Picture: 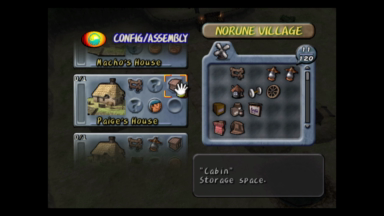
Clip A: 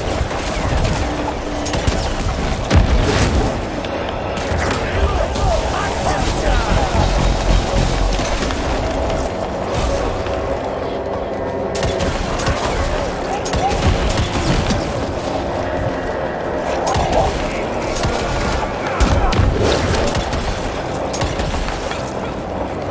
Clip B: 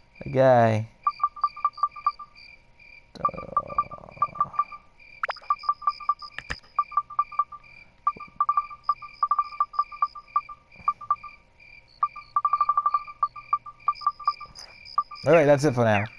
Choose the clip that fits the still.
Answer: B